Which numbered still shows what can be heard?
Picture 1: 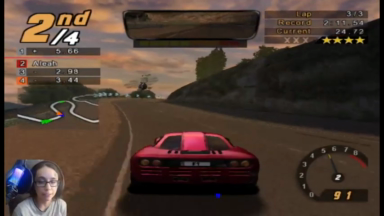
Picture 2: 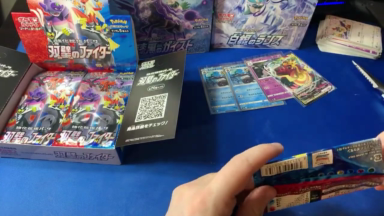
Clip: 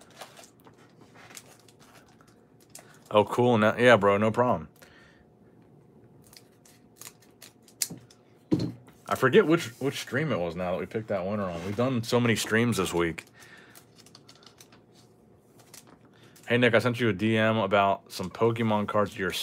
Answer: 2